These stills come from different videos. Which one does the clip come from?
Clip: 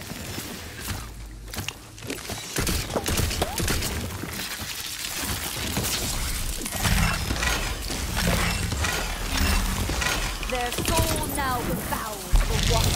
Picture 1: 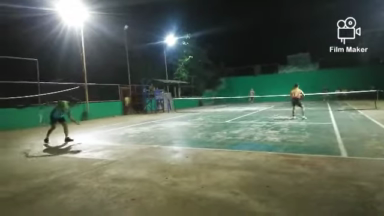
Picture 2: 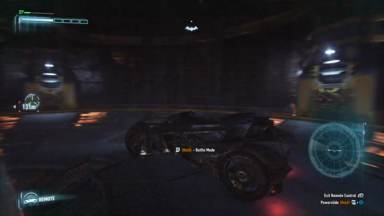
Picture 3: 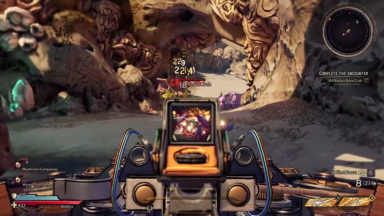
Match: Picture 3